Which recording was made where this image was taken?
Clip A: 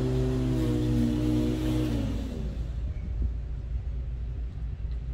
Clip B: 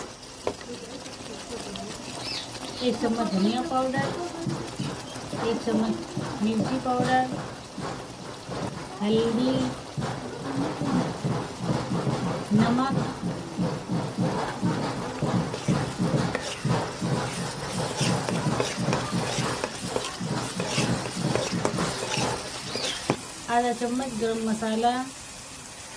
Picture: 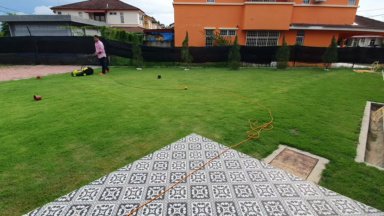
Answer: A